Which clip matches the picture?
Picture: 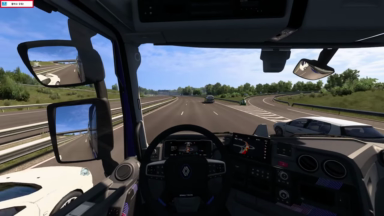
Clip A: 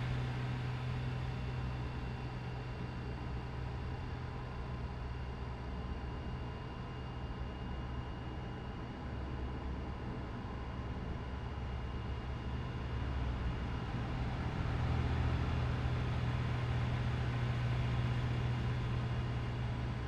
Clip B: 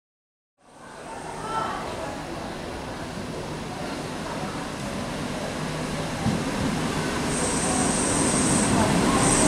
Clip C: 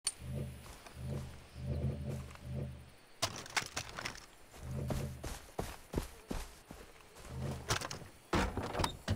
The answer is A